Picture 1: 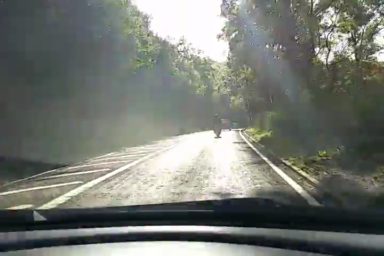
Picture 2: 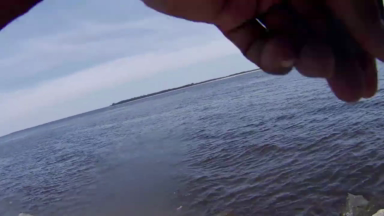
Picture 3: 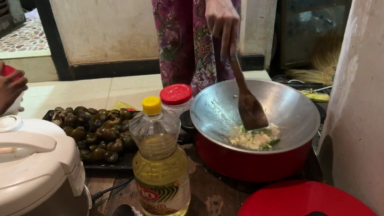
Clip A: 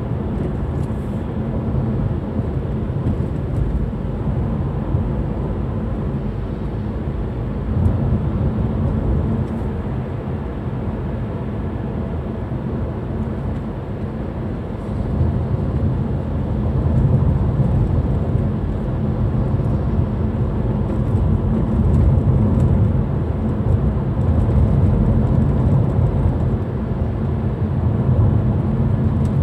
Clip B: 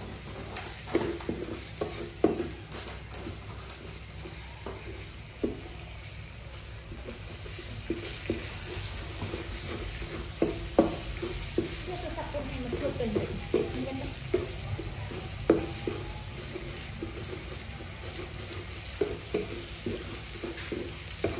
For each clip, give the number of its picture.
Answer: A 1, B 3